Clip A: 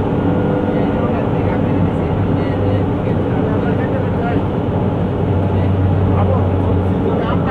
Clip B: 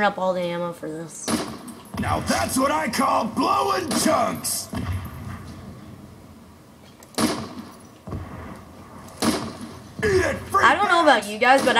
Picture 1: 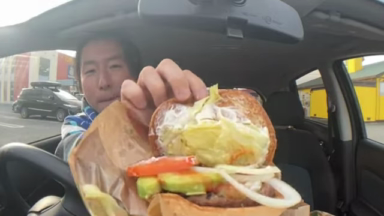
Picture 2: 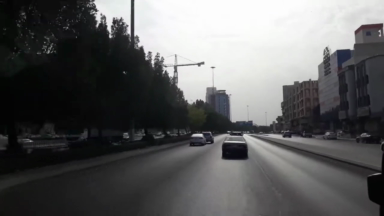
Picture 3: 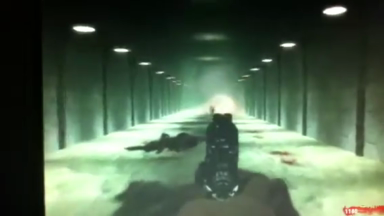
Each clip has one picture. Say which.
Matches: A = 2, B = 3